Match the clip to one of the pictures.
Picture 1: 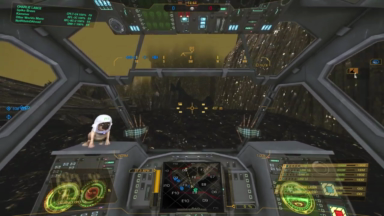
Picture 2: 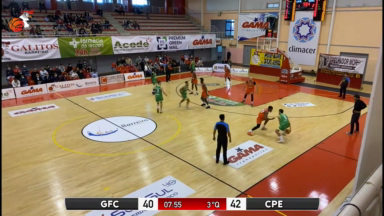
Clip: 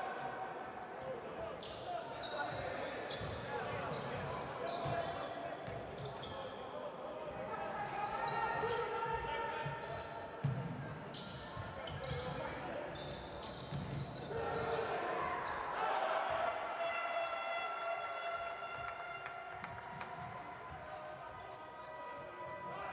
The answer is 2